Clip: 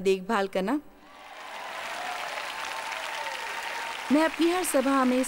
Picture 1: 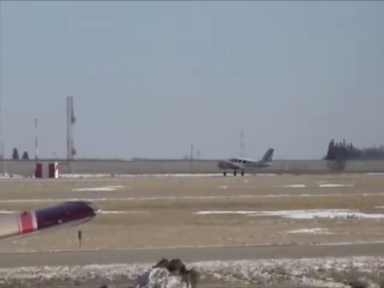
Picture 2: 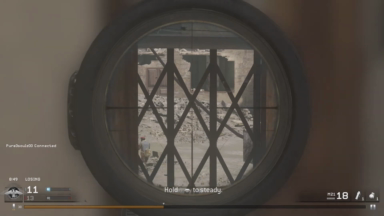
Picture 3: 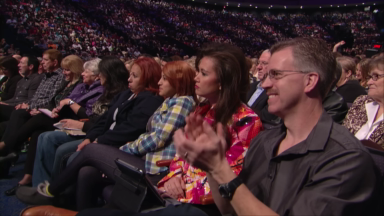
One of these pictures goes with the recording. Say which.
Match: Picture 3